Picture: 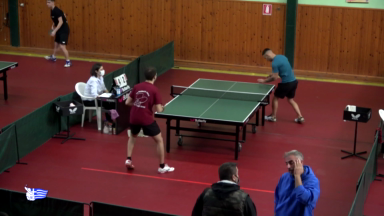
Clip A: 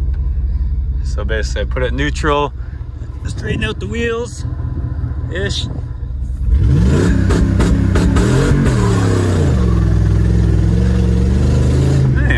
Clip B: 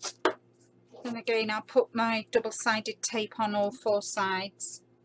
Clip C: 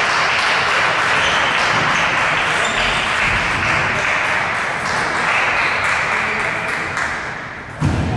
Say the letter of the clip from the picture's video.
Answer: C